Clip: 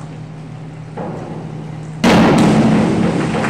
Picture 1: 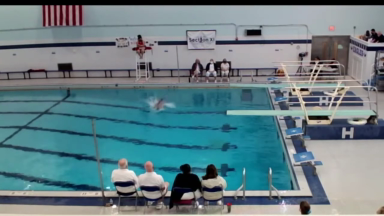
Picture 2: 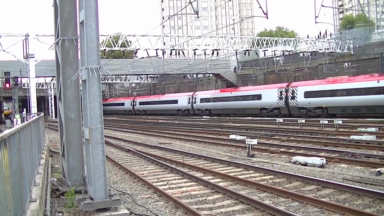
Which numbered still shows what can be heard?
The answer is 1